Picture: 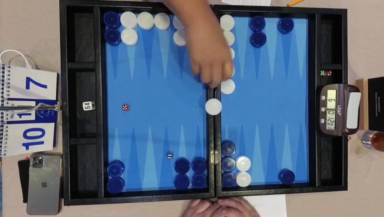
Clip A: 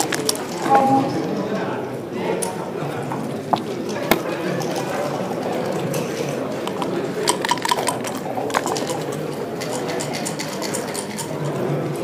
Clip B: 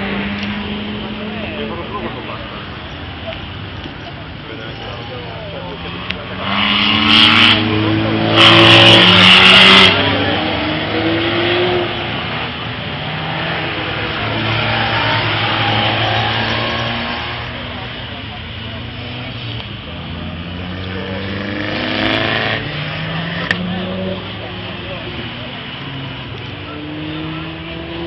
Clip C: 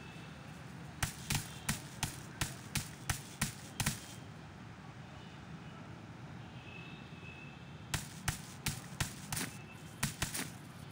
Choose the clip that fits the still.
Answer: A